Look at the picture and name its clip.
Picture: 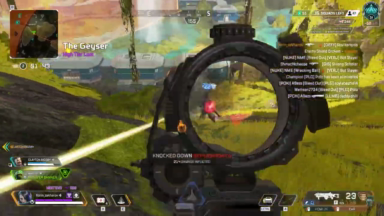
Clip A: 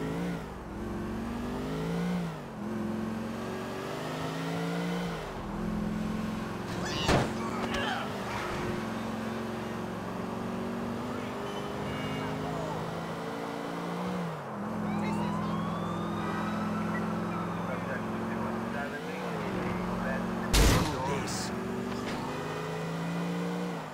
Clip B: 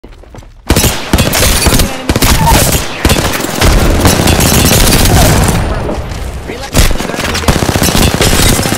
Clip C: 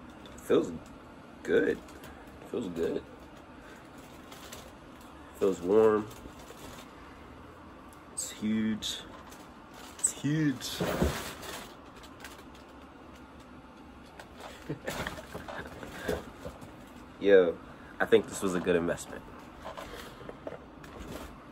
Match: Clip B